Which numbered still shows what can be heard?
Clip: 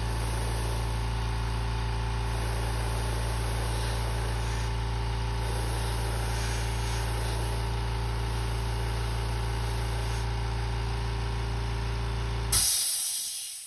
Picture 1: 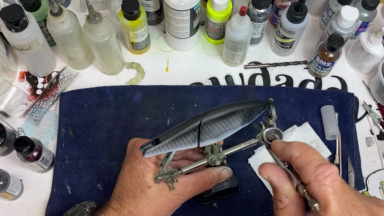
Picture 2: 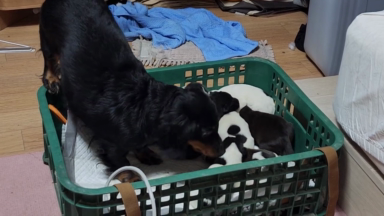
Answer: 1